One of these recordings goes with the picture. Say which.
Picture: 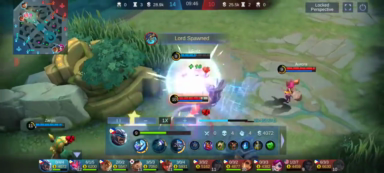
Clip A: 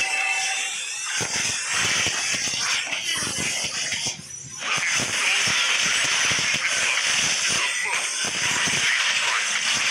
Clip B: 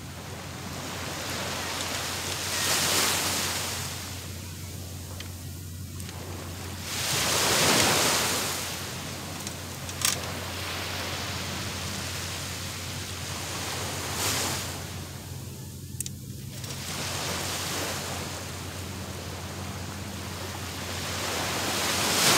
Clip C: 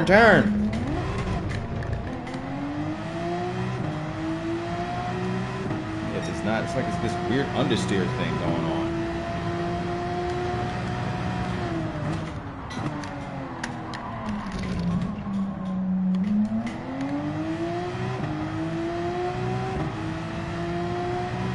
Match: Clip A